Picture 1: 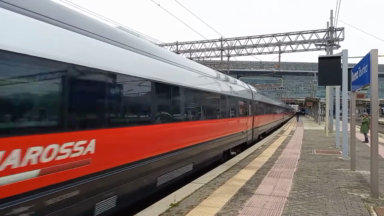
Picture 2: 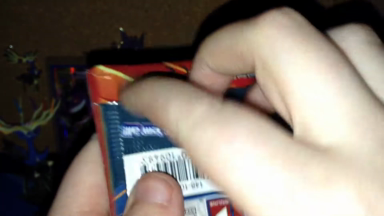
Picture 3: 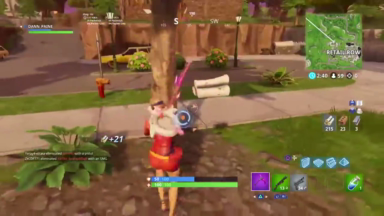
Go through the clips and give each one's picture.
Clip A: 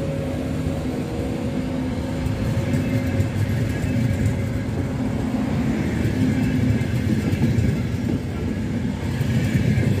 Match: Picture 1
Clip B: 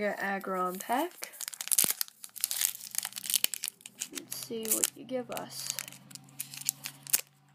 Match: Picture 2